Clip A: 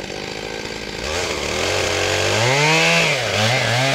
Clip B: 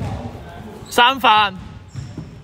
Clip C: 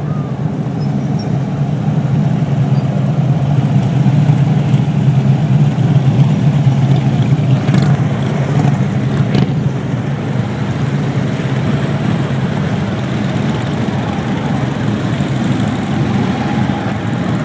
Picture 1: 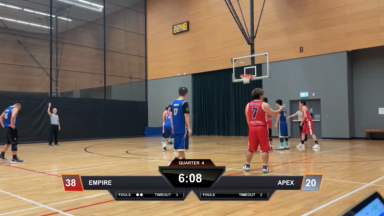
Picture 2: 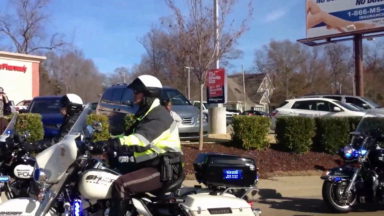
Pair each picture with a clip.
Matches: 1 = B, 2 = C